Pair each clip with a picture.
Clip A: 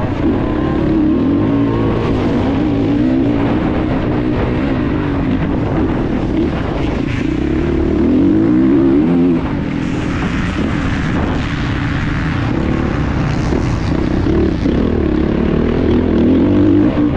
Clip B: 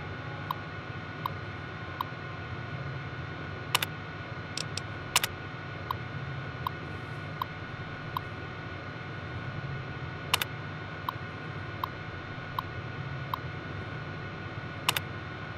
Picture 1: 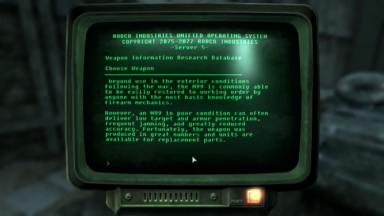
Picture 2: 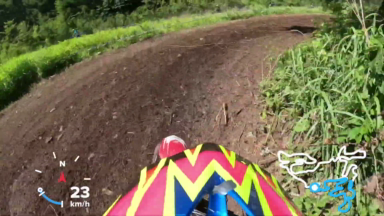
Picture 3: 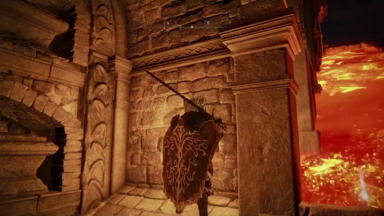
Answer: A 2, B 1